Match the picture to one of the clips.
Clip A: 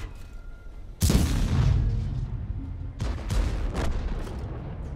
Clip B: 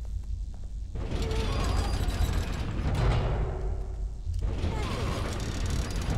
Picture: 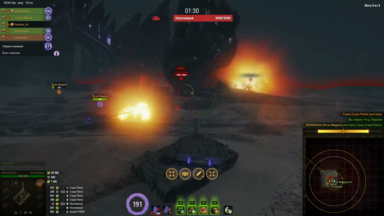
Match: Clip A